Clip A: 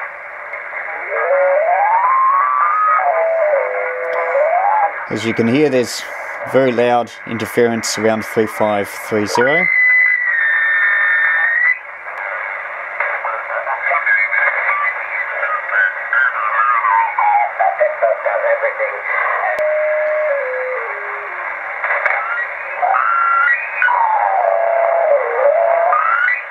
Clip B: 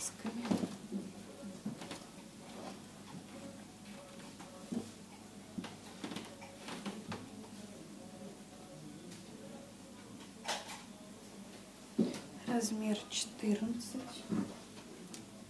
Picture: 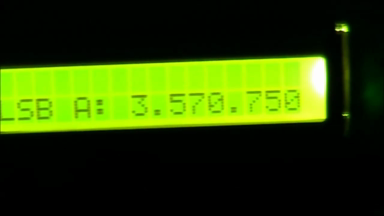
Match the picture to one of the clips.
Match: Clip A